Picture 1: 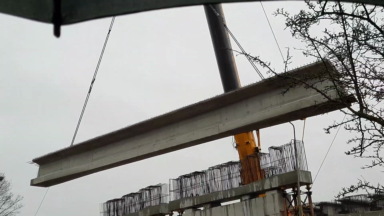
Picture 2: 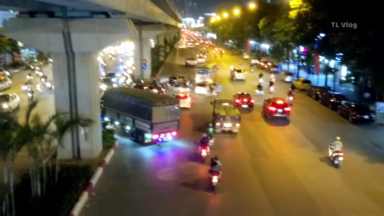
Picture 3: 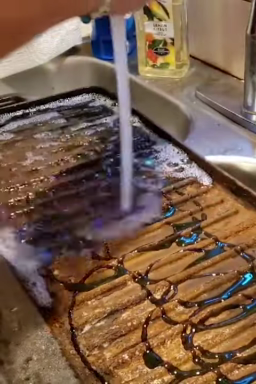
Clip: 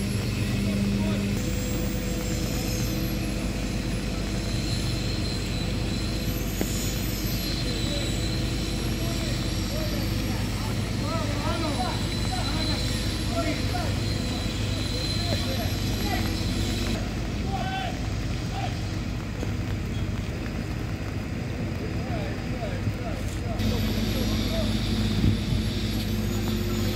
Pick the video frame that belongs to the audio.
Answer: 1